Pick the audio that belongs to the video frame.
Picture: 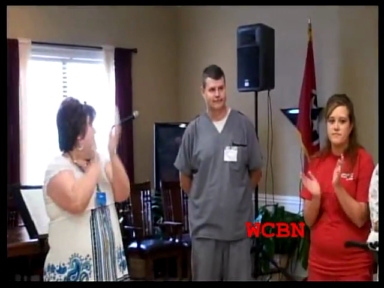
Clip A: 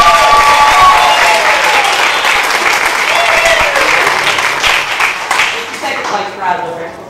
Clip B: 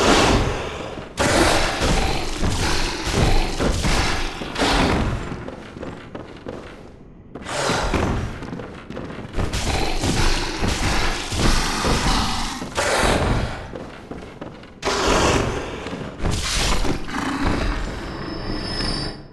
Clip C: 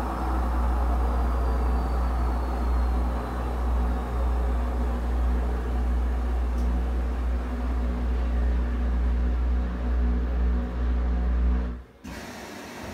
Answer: A